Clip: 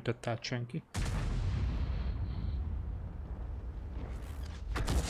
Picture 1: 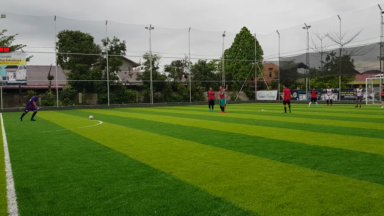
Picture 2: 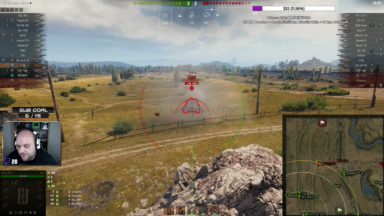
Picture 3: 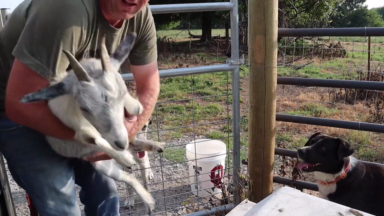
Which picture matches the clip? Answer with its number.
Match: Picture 2